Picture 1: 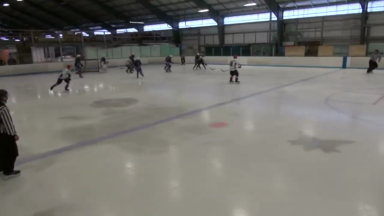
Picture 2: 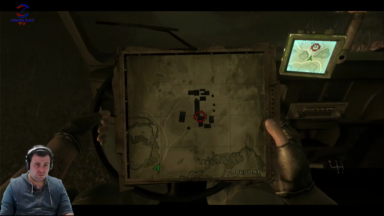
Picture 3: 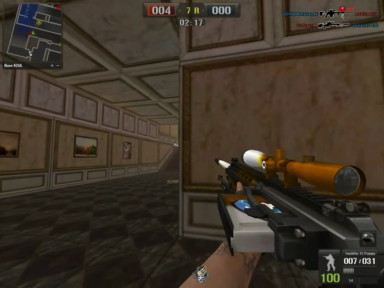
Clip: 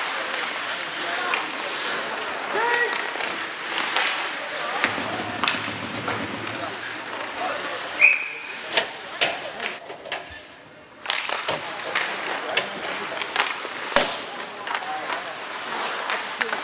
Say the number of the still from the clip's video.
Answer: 1